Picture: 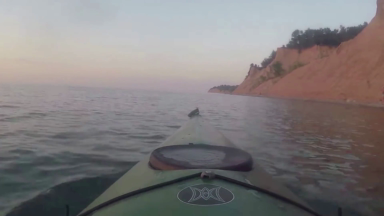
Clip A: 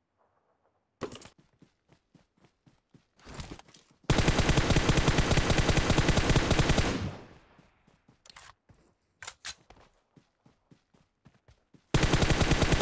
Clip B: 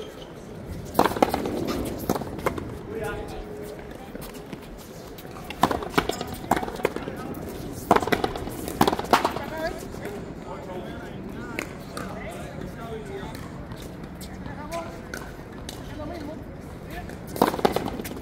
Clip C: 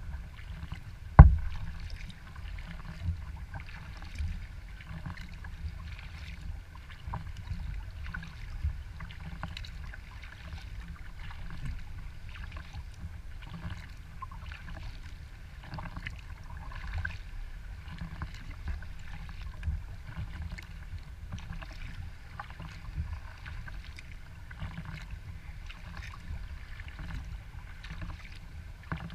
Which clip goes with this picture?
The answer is C